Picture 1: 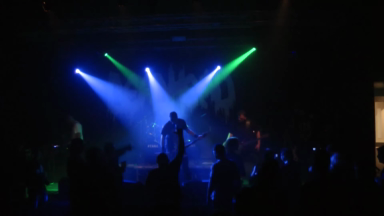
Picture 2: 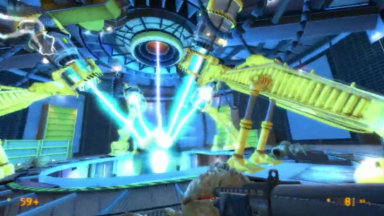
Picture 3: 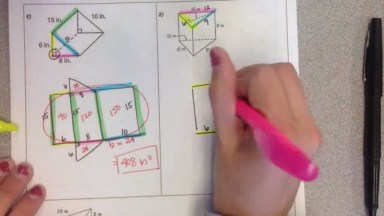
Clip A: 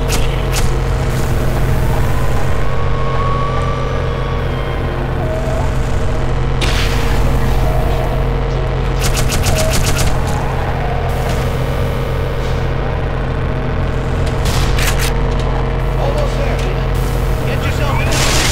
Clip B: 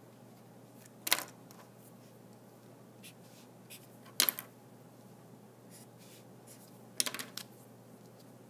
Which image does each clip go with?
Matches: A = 2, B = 3